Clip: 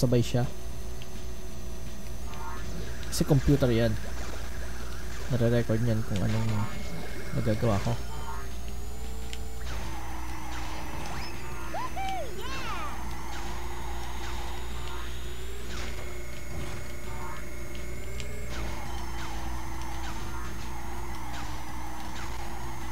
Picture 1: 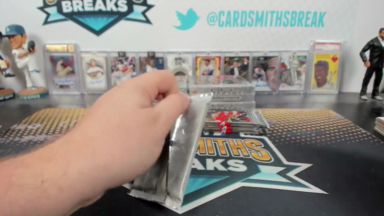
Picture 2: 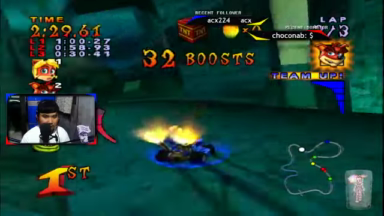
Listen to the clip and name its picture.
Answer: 2